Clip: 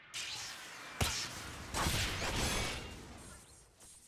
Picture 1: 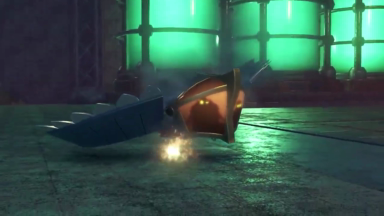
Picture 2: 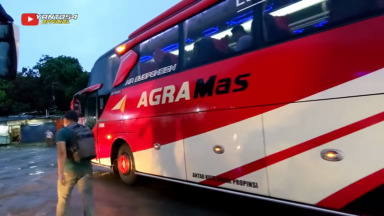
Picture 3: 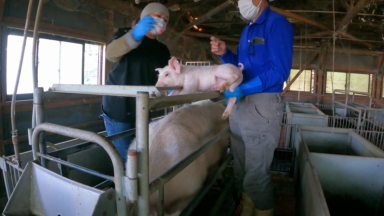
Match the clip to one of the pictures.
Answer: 1